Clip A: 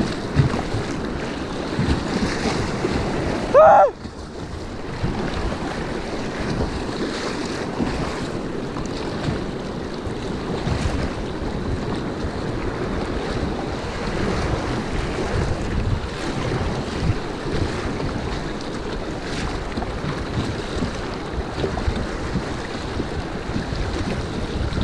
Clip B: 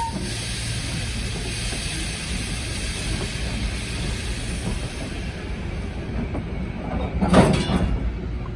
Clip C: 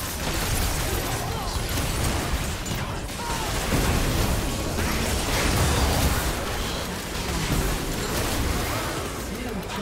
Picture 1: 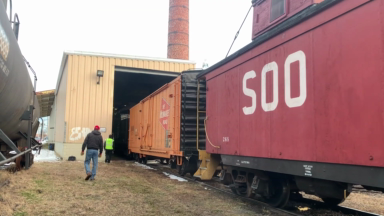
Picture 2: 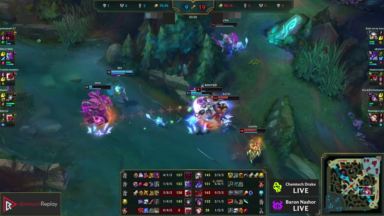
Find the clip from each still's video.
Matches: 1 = B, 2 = C